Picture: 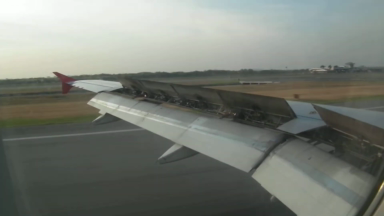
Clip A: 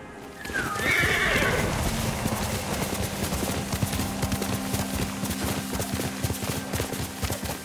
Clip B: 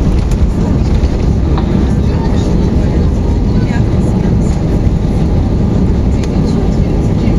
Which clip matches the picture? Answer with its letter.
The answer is B